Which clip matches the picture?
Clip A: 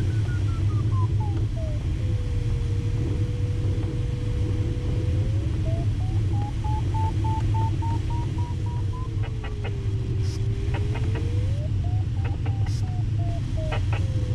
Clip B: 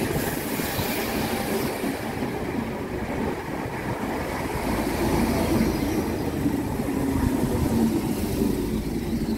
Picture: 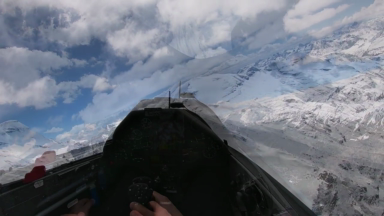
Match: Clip A